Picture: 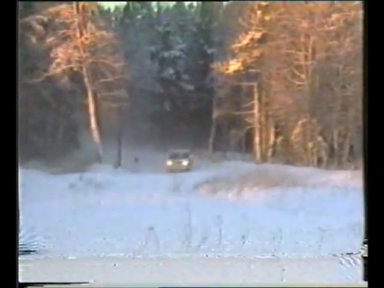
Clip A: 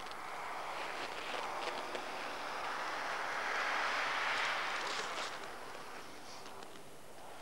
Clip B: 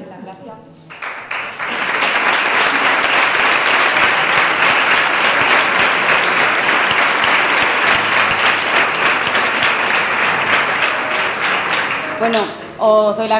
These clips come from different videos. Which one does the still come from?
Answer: A